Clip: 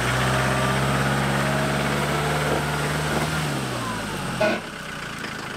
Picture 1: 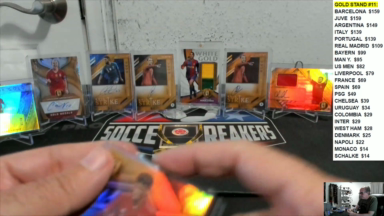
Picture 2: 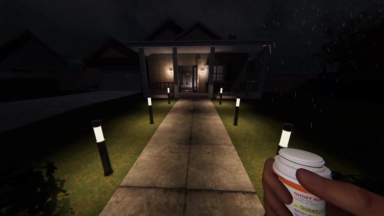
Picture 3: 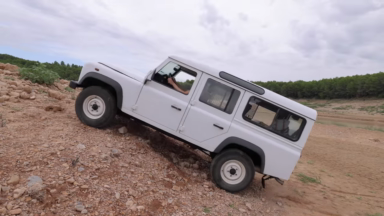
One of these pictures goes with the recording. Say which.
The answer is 3